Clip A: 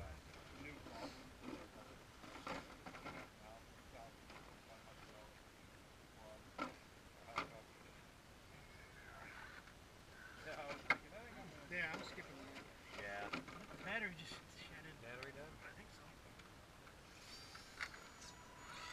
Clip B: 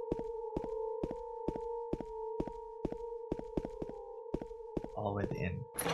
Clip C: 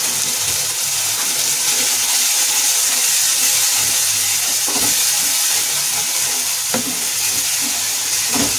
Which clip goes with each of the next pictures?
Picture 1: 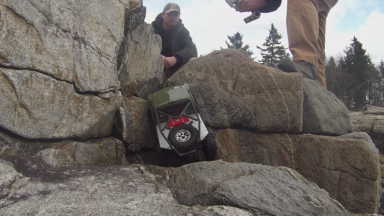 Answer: A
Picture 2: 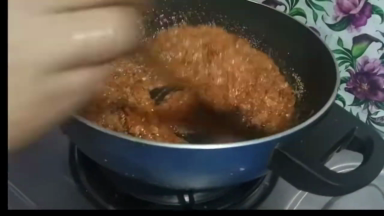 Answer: C